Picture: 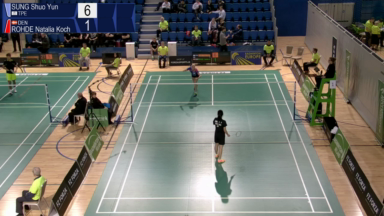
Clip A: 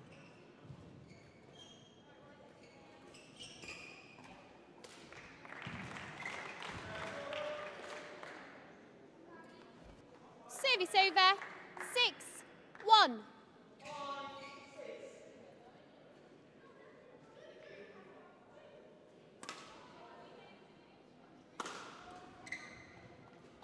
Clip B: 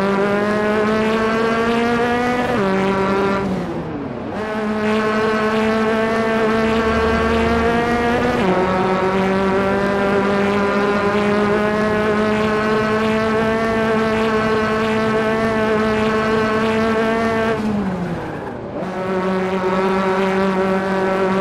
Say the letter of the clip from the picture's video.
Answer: A